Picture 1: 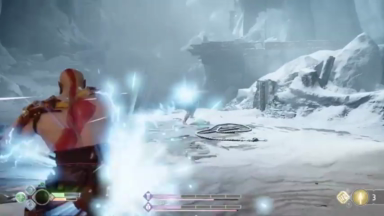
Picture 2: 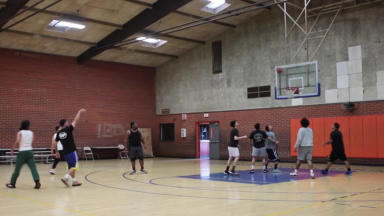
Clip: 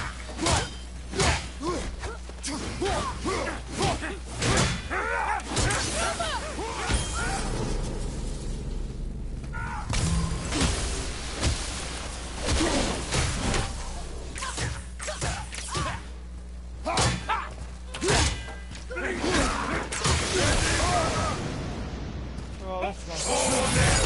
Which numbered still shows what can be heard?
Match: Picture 1